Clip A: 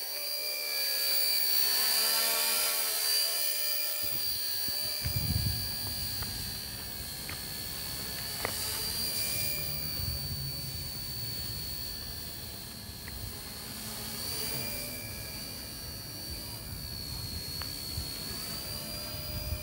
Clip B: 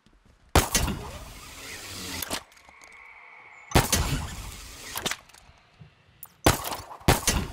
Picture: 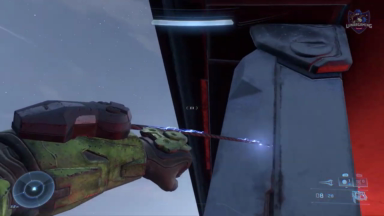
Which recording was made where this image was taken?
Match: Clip B